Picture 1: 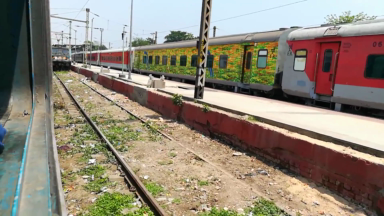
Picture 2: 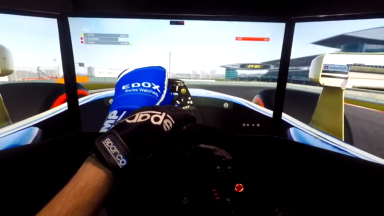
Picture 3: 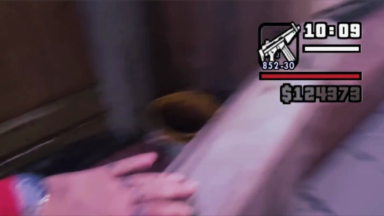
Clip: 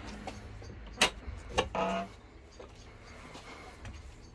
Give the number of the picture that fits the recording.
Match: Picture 3